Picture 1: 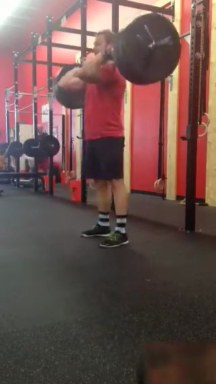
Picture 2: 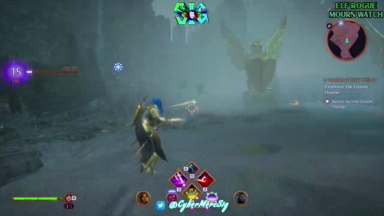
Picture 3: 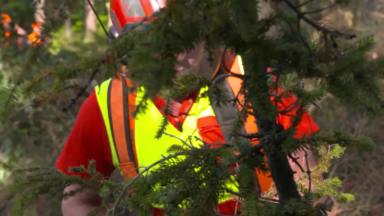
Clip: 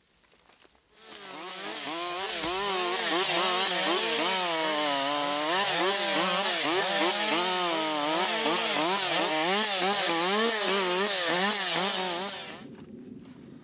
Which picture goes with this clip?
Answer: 3